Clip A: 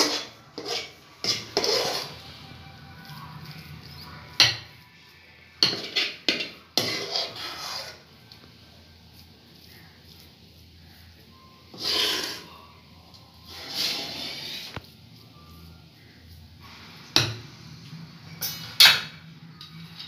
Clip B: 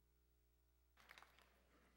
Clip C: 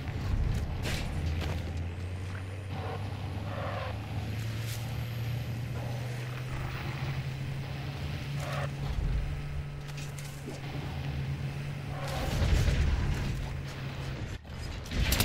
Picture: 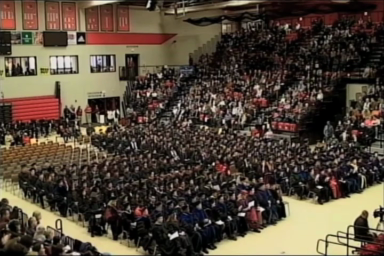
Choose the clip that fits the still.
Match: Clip B